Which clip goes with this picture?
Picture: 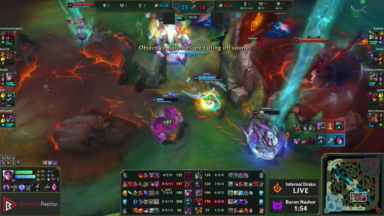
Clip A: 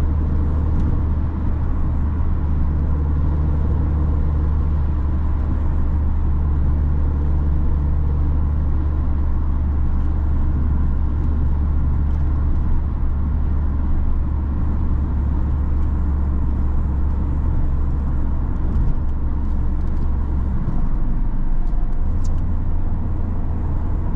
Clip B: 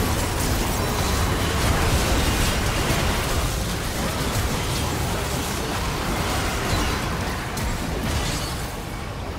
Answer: B